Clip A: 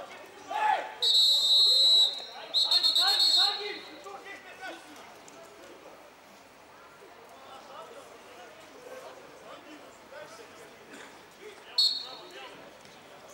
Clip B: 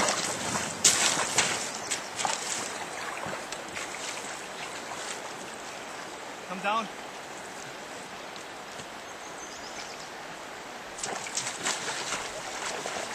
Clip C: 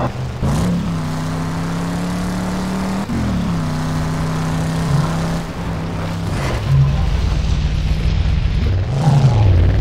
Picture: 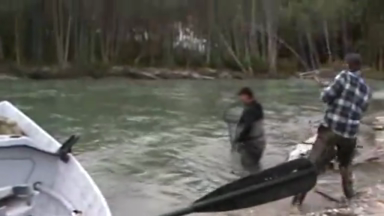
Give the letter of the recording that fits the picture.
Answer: B